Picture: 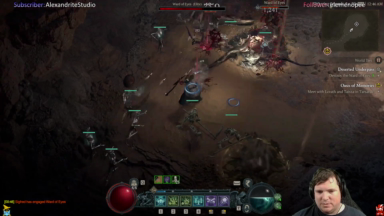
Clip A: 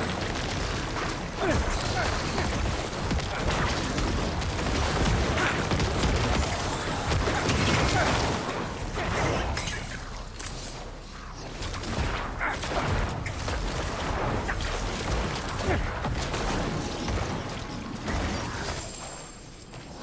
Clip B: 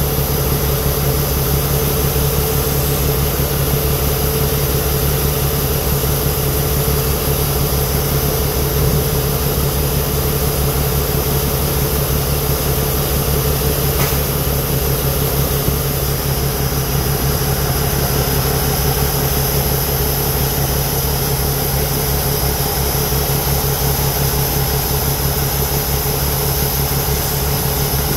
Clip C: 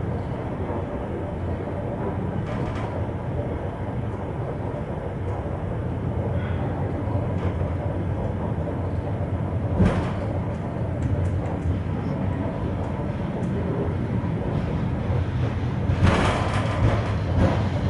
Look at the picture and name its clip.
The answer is A